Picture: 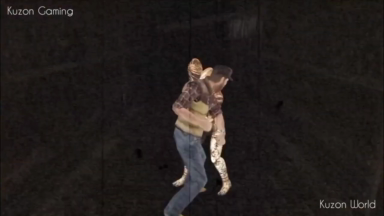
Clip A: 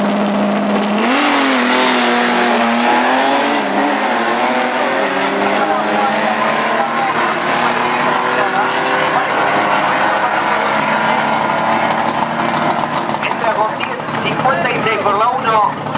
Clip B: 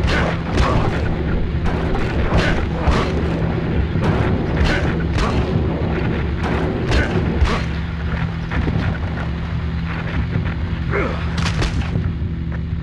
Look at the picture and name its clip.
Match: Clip B